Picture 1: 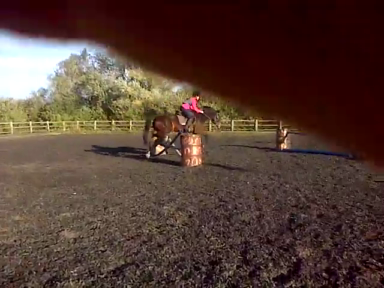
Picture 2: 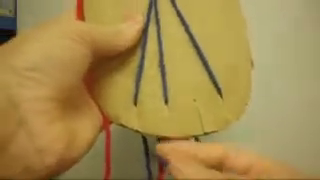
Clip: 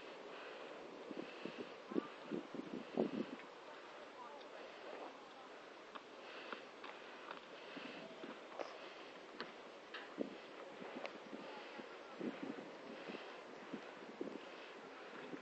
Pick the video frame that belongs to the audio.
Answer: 1